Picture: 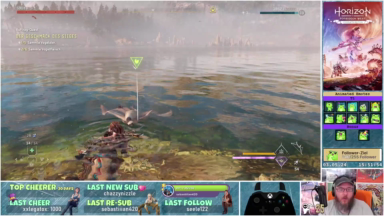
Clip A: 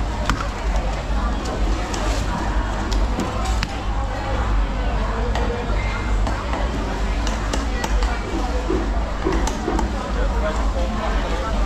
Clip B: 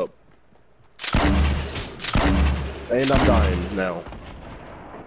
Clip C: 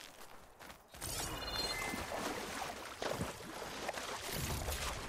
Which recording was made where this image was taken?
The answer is C